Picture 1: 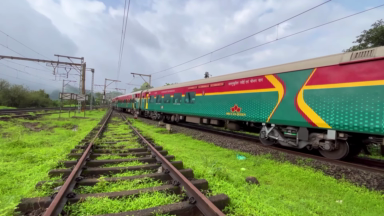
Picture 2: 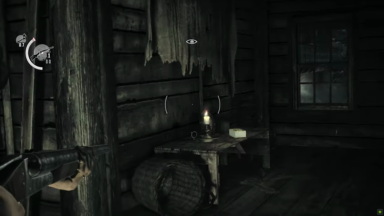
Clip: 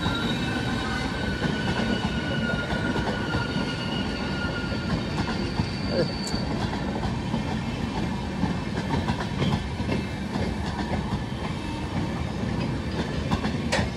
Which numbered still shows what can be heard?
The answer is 1